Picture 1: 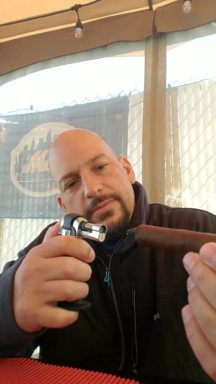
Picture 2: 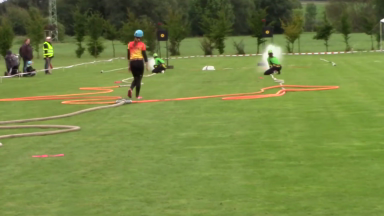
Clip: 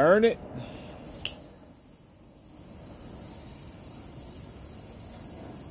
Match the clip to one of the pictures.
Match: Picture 1